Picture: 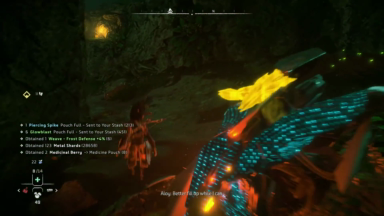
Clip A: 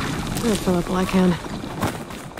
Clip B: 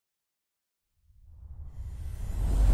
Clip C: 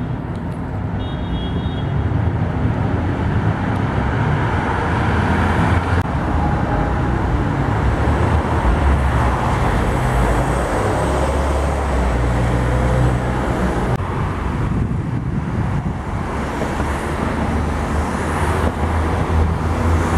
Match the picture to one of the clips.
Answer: A